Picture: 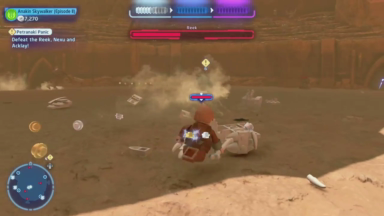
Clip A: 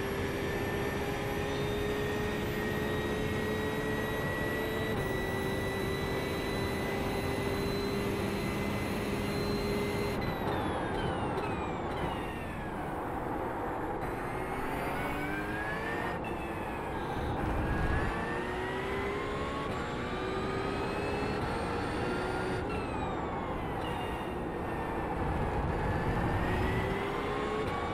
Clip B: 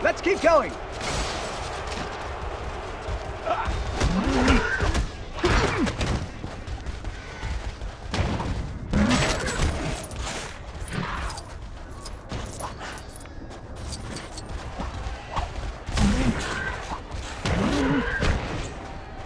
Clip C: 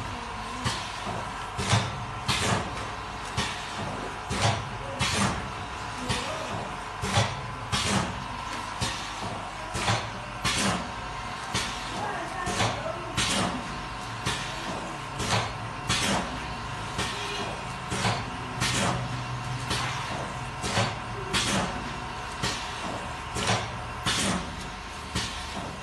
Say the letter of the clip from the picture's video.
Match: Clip B